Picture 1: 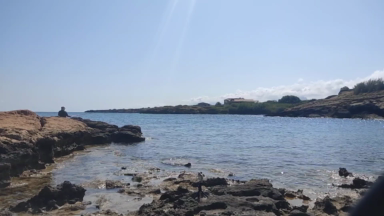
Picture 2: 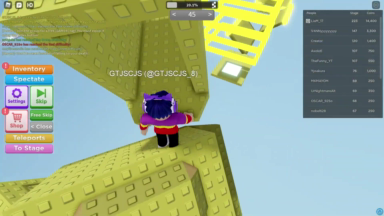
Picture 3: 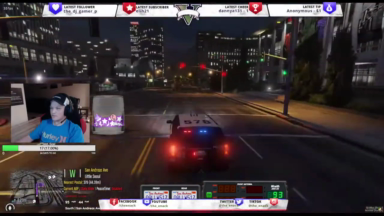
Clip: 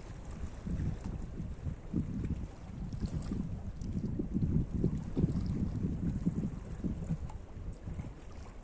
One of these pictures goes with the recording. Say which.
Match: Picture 1